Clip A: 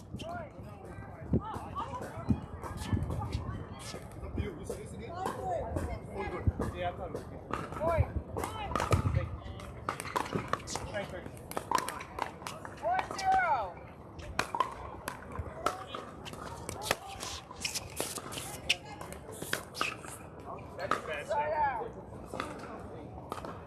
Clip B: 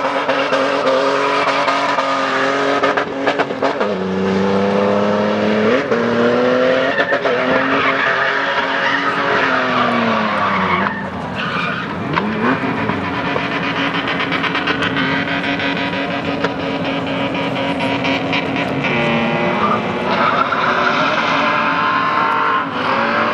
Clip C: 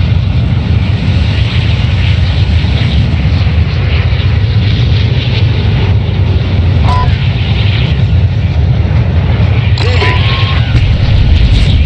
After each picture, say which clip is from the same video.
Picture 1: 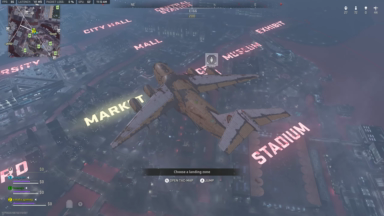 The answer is C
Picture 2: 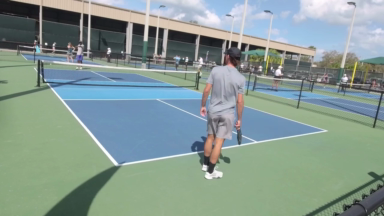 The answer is A